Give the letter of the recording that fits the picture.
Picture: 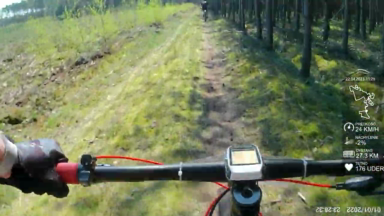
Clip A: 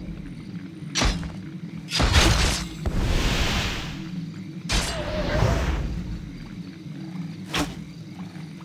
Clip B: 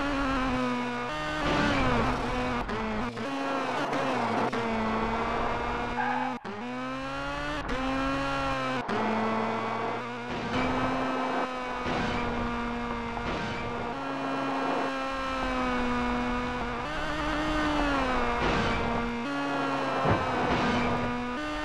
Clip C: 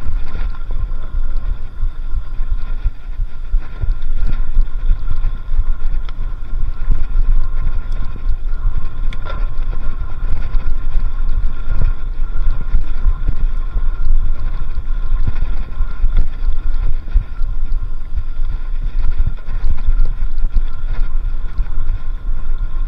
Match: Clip C